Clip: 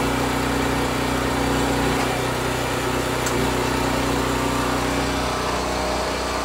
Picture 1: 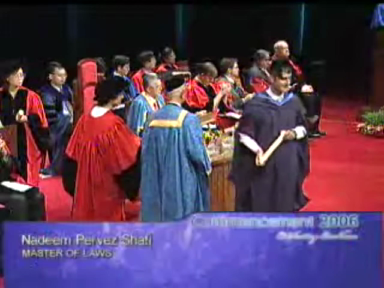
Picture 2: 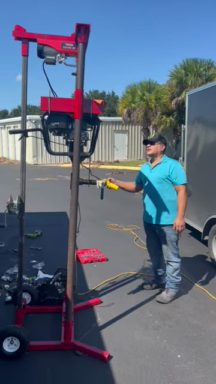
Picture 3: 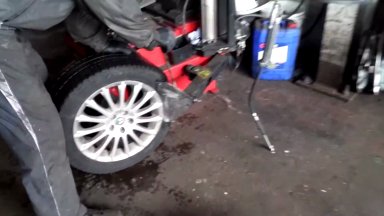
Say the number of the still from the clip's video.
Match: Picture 2